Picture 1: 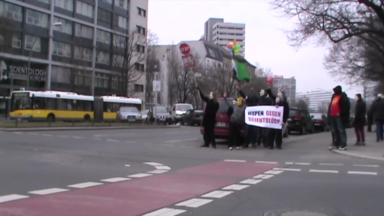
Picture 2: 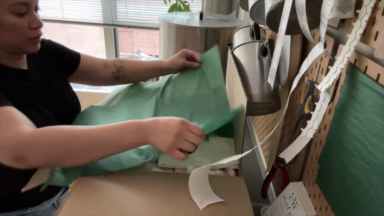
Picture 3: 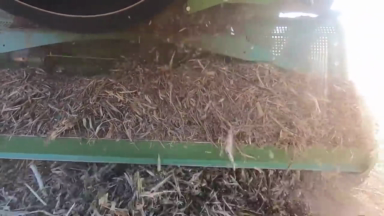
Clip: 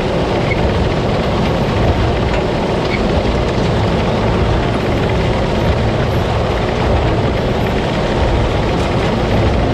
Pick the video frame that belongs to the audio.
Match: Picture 3